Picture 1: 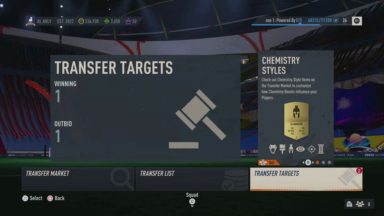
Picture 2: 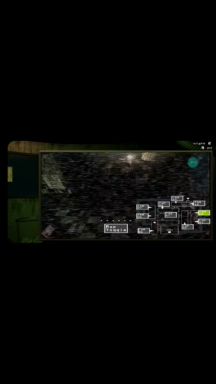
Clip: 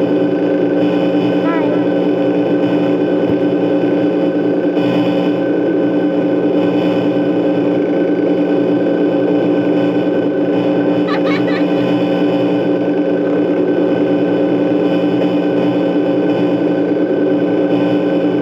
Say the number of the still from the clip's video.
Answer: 2